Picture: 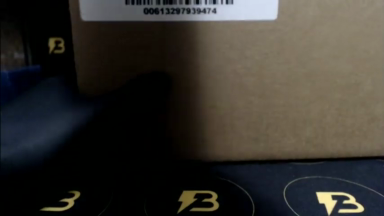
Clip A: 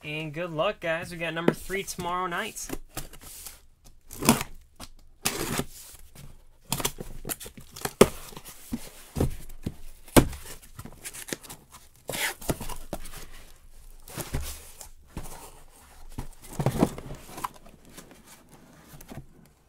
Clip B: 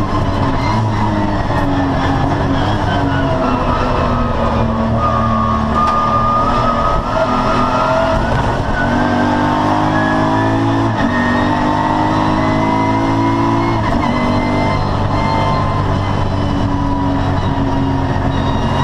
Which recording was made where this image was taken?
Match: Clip A